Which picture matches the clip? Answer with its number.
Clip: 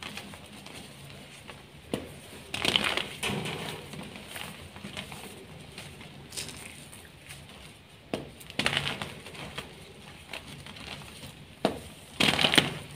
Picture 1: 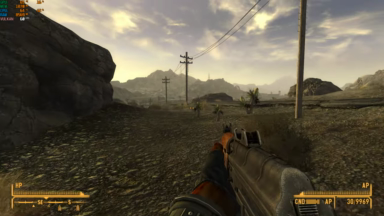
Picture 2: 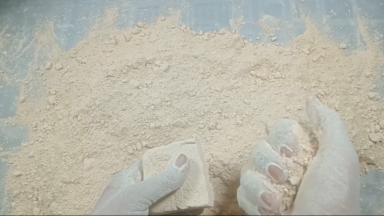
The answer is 2